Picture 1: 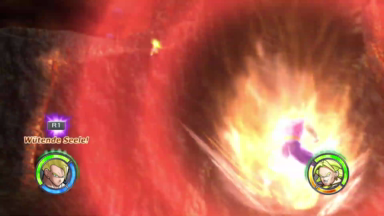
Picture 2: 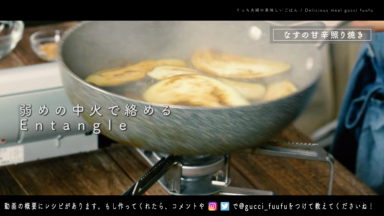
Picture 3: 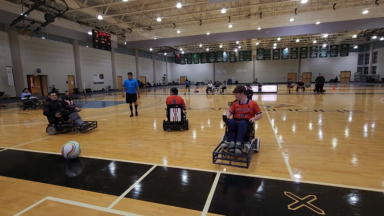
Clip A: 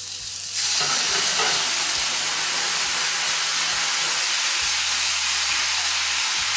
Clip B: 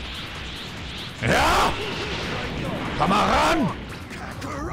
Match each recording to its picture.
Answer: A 2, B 1